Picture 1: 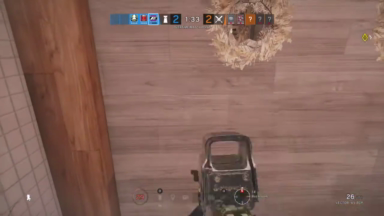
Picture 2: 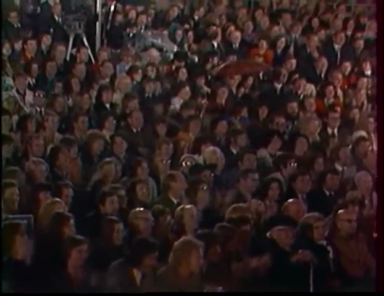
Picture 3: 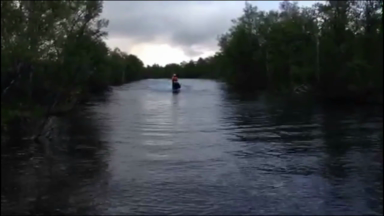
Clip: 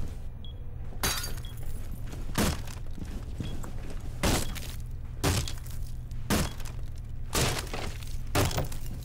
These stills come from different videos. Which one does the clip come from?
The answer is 1